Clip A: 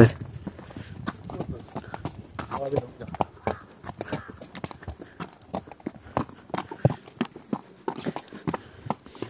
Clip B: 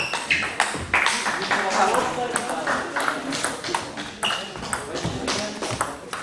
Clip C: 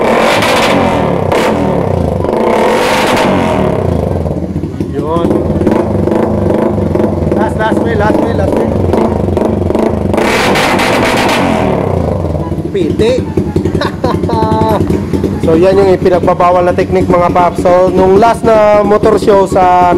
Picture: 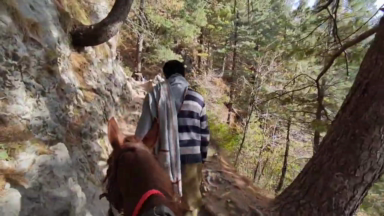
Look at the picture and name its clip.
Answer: A